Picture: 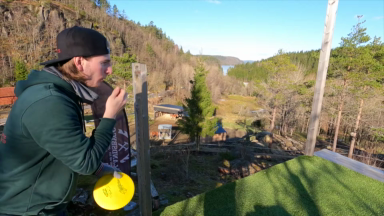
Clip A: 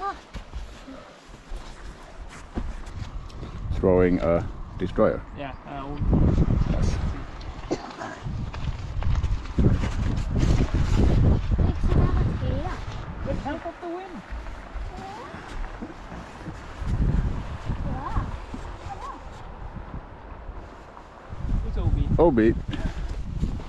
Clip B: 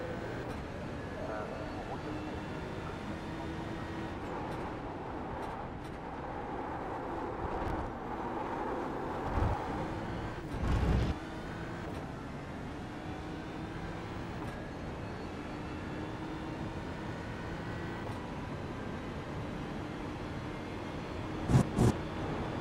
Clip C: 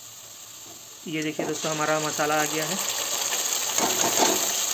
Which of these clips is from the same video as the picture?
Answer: A